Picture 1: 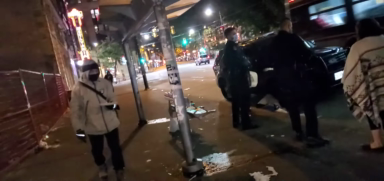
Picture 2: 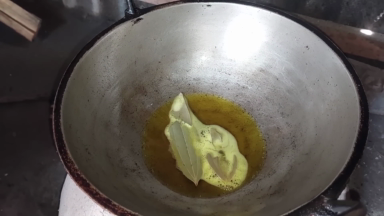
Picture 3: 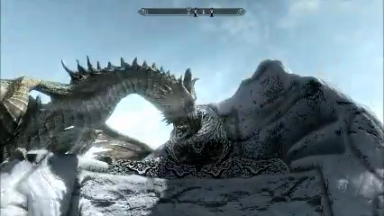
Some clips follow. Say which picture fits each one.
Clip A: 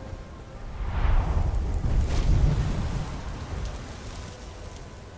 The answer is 3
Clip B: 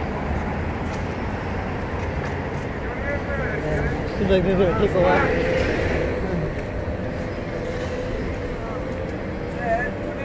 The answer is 1